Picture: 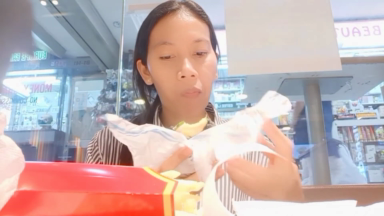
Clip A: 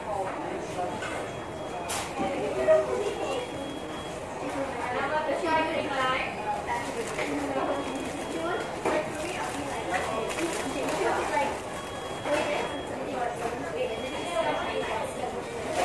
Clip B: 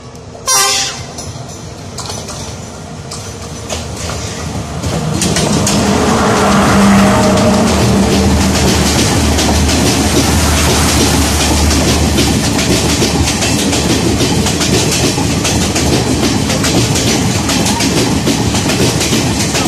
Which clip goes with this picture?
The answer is A